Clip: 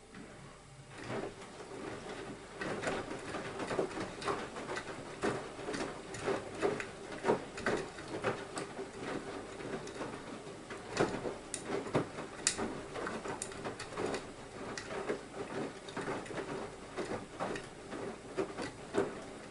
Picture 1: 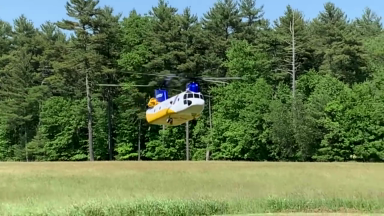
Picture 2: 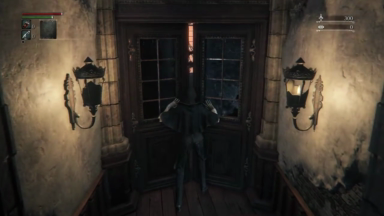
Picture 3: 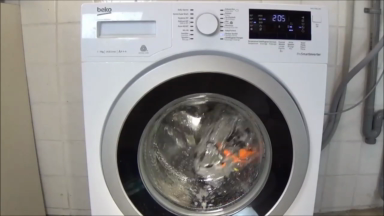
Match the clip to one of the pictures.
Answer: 3